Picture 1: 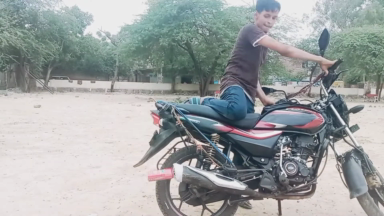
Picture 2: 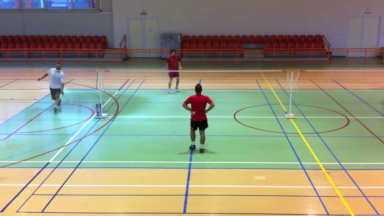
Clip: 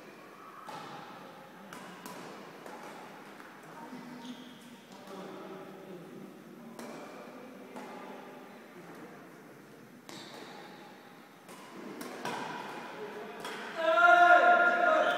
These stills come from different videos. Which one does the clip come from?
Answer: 2